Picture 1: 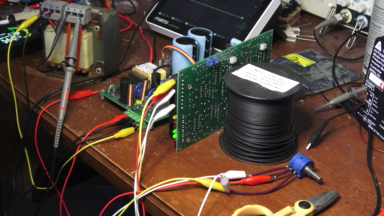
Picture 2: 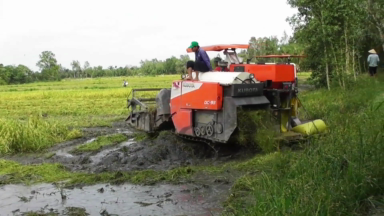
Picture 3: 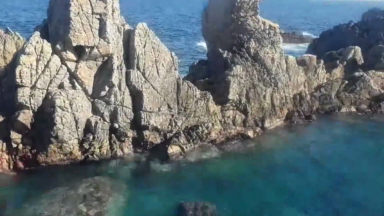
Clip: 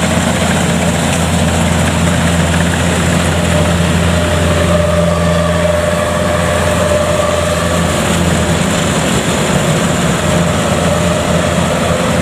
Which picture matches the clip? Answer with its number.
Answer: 2